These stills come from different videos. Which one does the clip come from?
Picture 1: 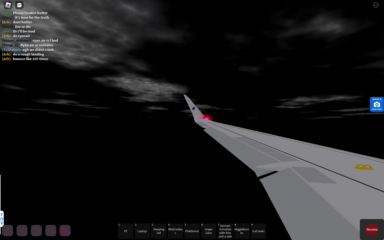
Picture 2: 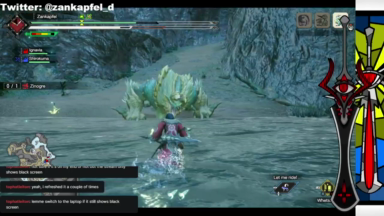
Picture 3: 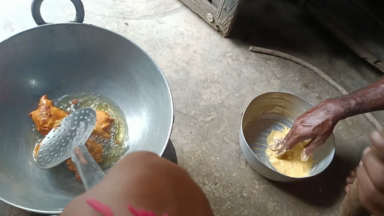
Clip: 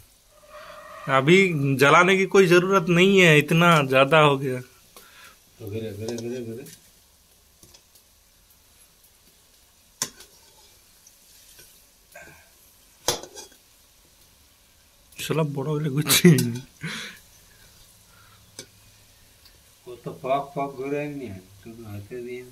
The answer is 3